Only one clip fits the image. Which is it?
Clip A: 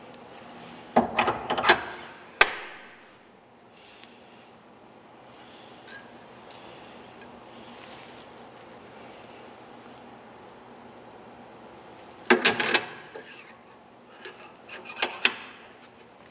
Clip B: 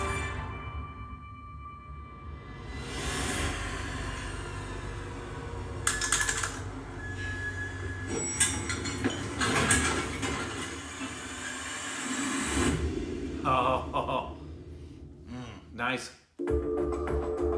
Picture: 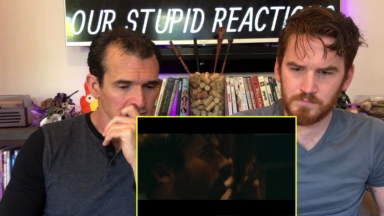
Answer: B